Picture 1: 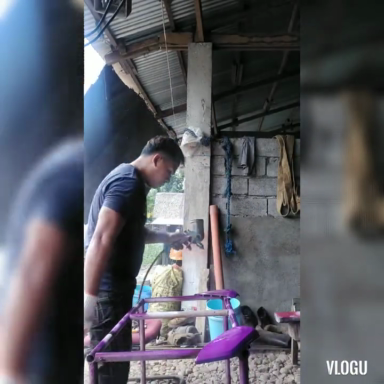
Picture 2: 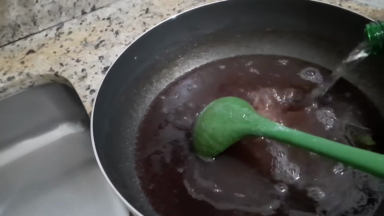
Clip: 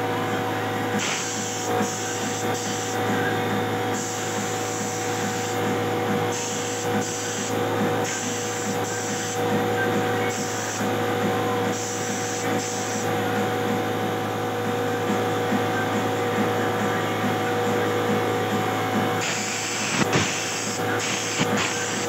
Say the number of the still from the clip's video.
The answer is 1